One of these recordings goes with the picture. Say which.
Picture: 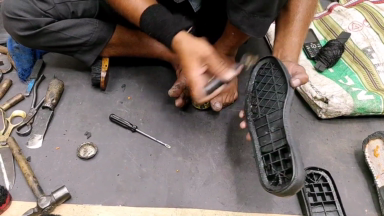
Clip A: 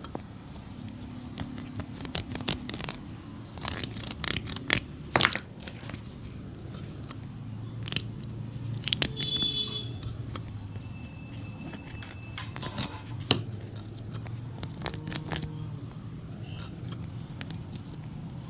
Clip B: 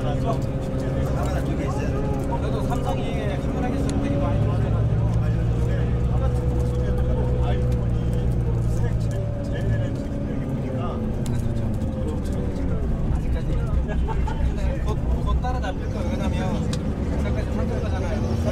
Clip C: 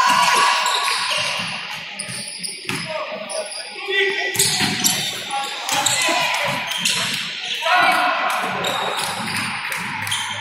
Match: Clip A